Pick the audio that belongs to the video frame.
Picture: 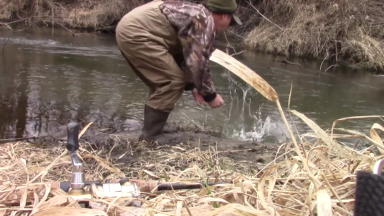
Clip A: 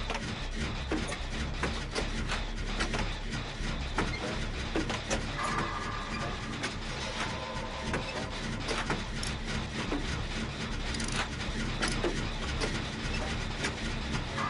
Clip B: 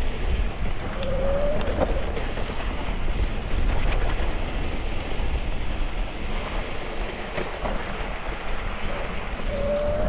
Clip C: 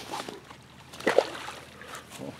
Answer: C